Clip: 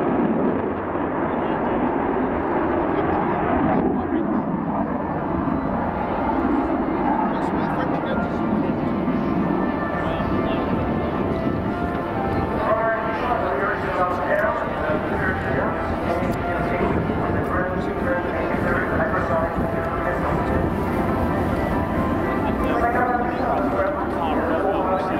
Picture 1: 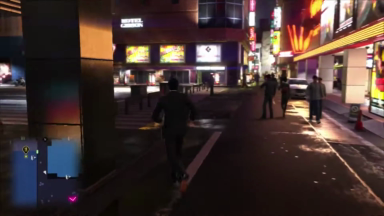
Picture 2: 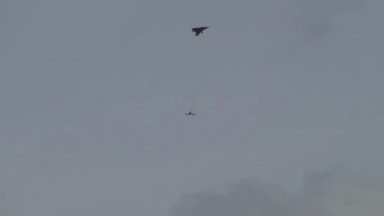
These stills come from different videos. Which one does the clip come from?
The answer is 2